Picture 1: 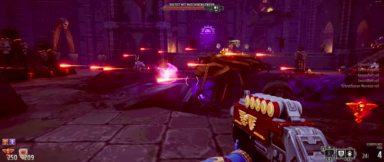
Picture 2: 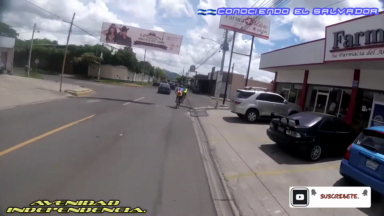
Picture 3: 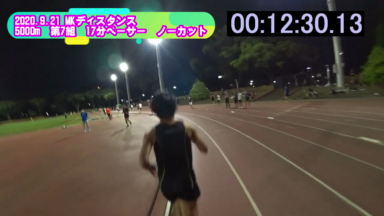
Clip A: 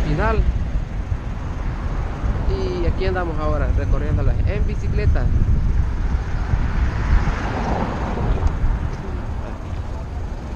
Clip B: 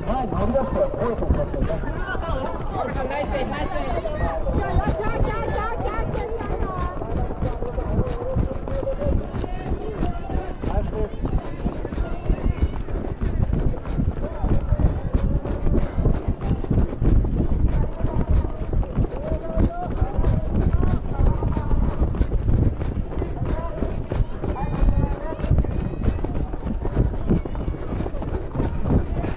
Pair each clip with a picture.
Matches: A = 2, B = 3